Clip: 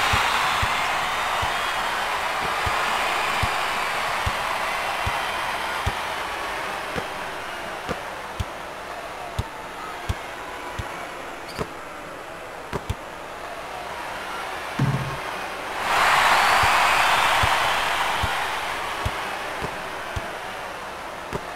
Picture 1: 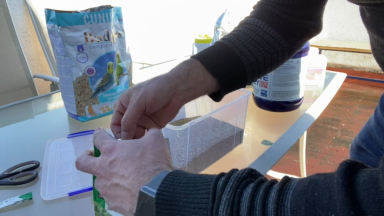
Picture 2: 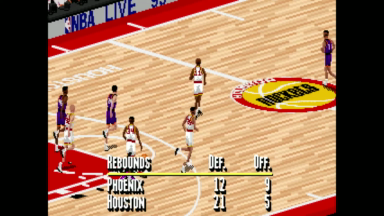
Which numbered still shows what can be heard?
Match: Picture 2